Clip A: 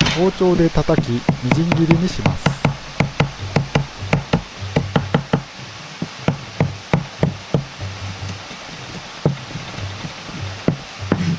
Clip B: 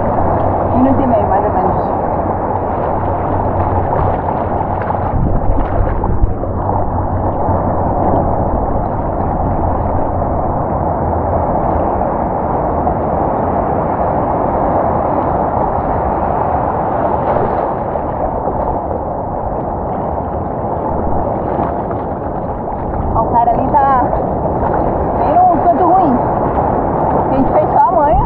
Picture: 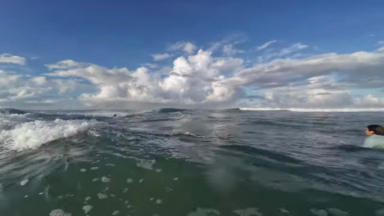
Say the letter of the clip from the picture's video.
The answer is B